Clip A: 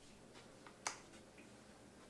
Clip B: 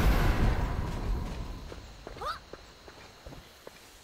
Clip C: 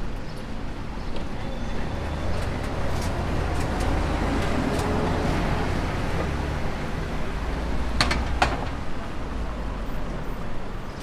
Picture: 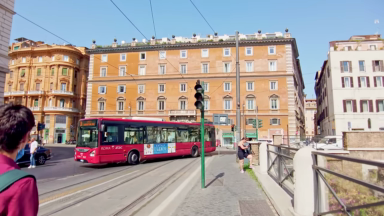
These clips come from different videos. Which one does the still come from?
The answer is C